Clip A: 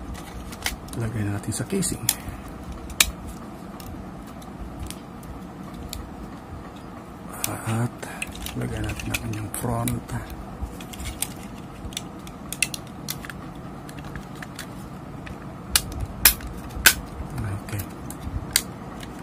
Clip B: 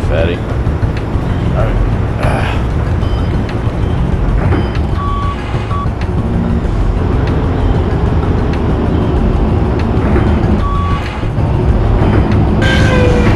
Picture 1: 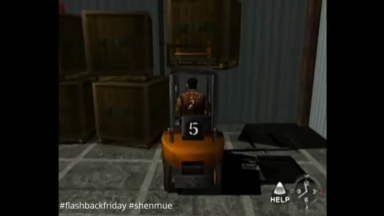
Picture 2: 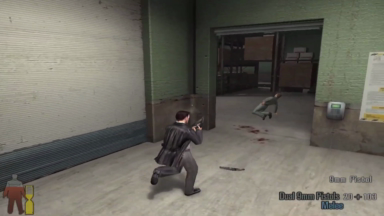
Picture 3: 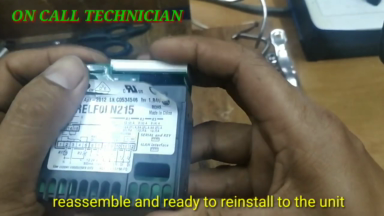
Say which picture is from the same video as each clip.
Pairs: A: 3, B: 1